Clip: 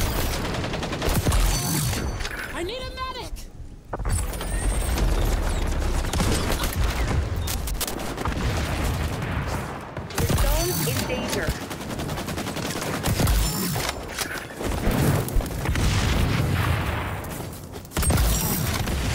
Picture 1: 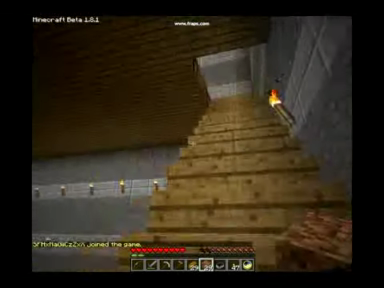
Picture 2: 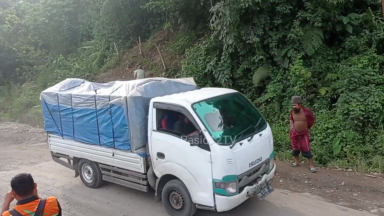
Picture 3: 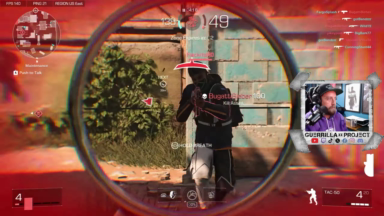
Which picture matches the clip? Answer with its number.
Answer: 3